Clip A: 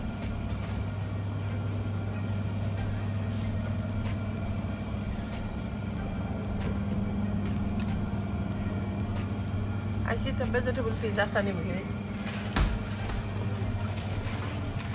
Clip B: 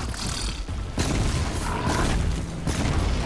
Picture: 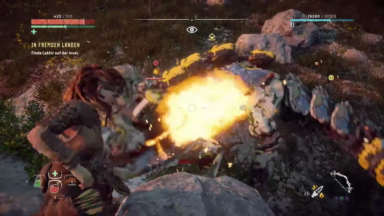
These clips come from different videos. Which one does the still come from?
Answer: B